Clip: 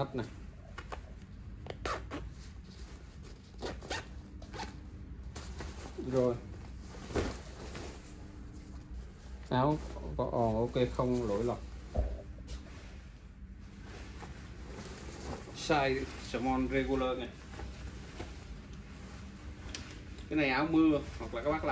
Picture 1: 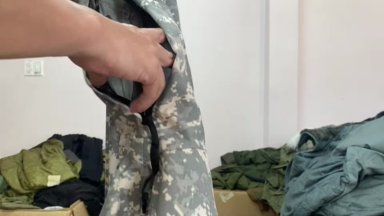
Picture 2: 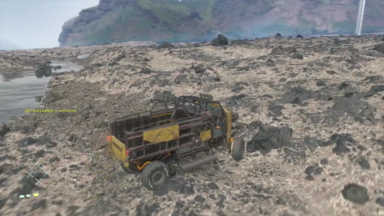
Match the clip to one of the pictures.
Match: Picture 1